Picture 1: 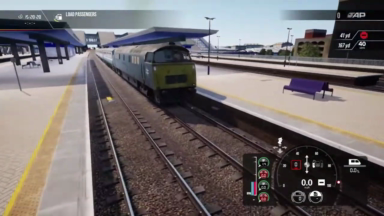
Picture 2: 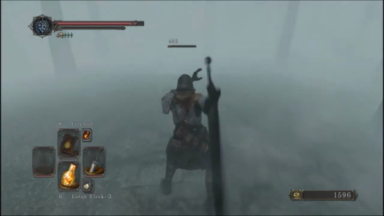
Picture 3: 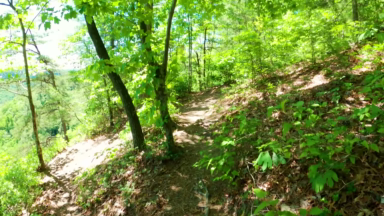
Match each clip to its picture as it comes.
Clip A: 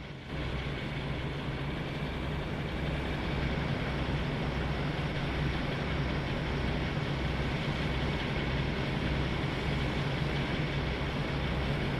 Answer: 1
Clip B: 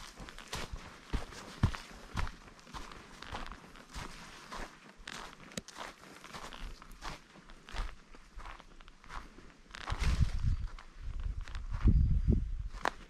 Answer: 3